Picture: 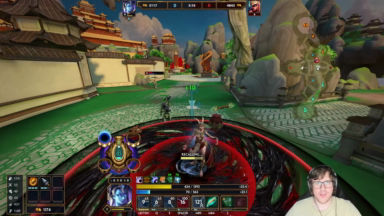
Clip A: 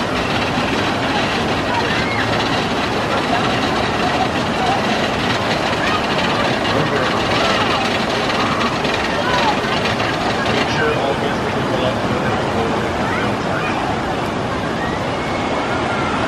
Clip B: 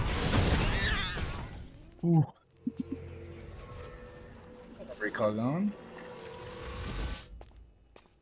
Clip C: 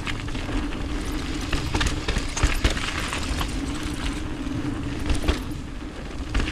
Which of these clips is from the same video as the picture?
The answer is B